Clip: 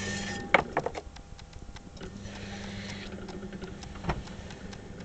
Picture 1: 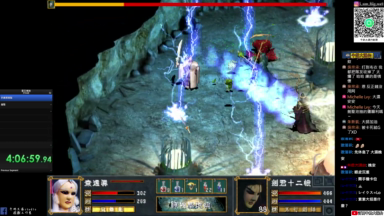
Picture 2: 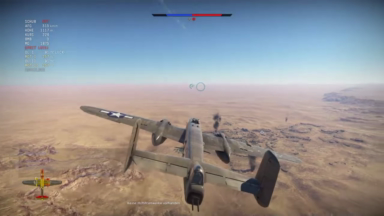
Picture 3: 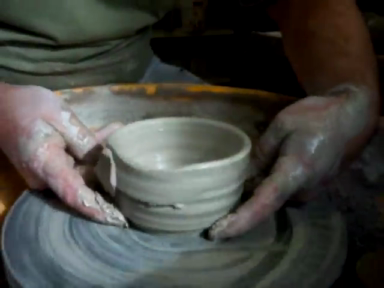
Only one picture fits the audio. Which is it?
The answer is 3